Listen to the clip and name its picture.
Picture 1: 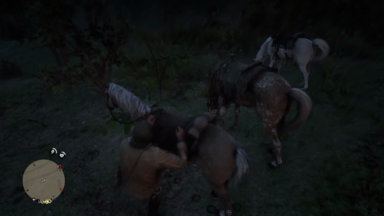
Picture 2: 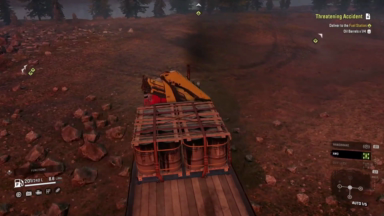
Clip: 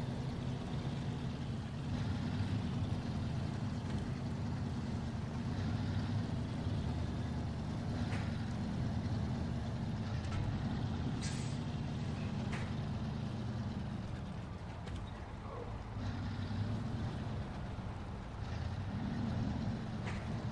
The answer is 2